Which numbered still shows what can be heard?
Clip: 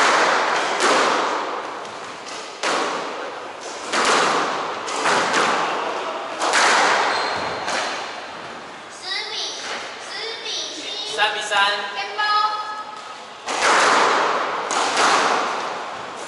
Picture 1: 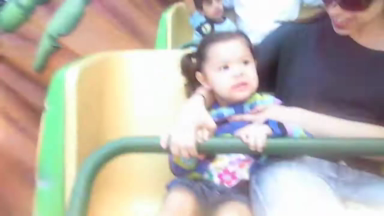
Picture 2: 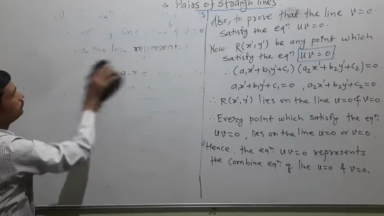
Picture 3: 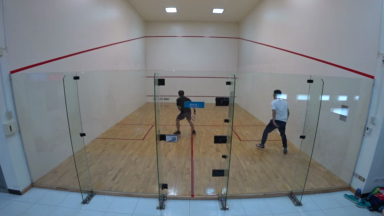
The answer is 3